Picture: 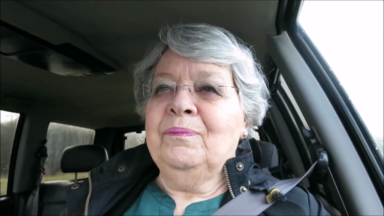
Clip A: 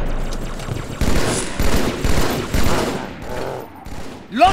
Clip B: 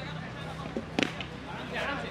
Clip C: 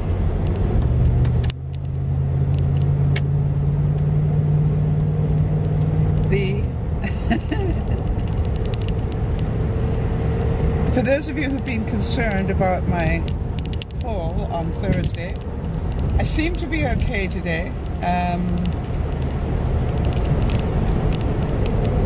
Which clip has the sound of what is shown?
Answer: C